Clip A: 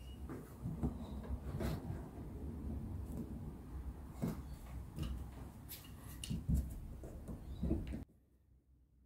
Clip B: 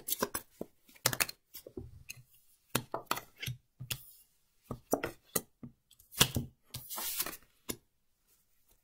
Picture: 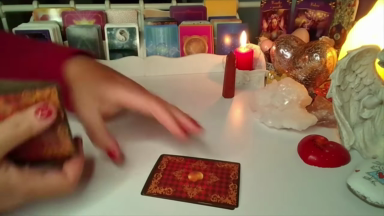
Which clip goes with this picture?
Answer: B